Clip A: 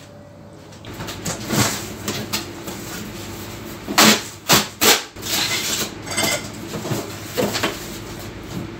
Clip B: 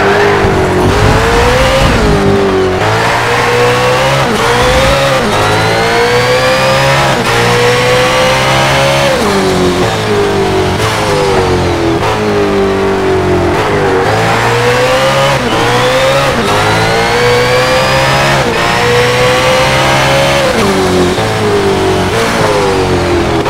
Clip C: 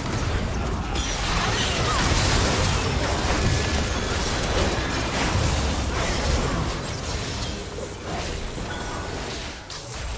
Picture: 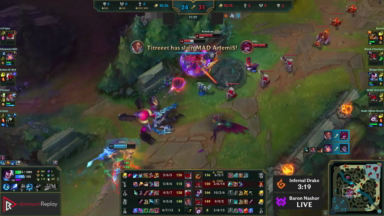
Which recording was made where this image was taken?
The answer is C